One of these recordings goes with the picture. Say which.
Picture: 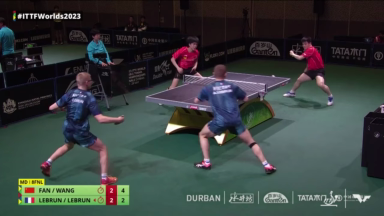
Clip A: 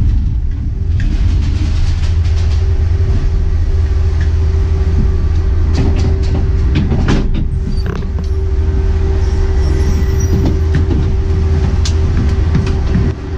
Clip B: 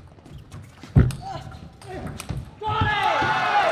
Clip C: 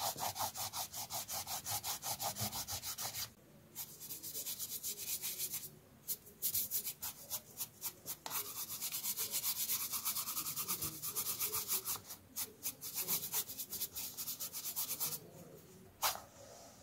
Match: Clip B